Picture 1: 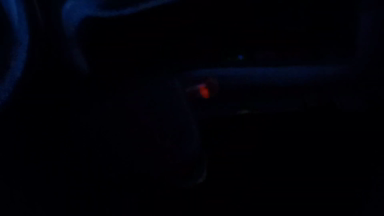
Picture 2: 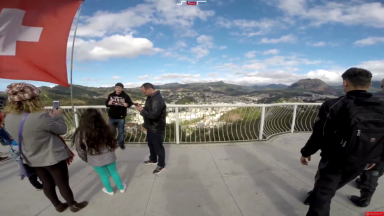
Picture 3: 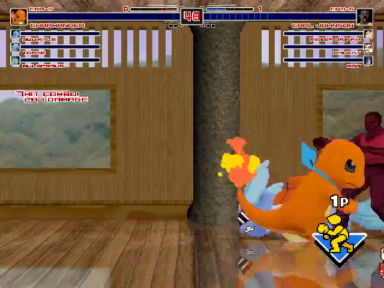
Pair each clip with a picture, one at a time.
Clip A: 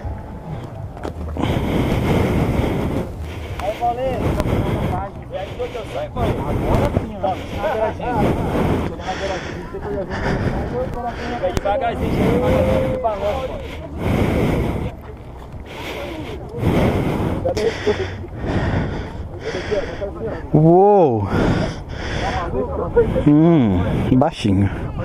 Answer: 2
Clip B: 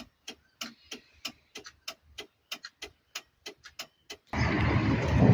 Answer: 1